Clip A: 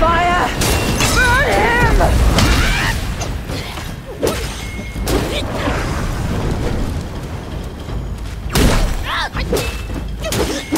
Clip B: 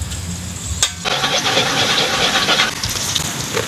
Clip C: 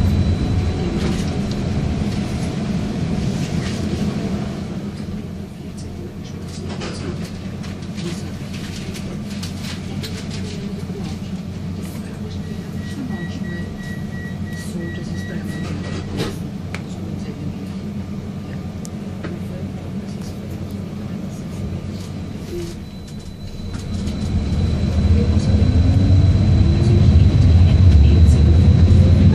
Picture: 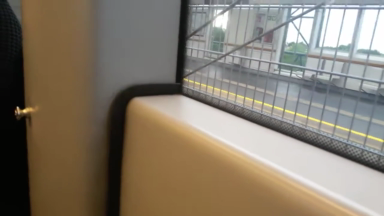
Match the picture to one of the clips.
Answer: C